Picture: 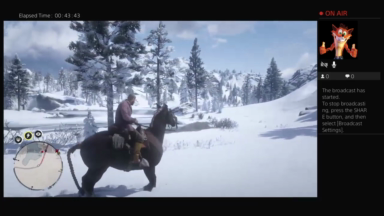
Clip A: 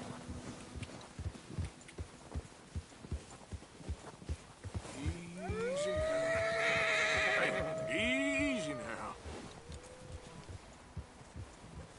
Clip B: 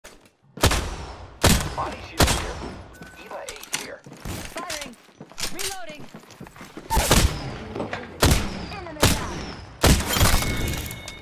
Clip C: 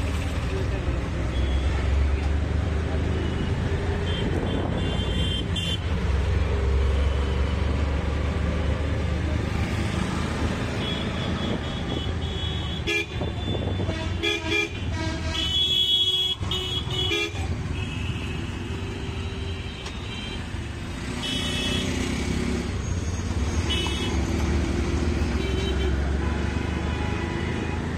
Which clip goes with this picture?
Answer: A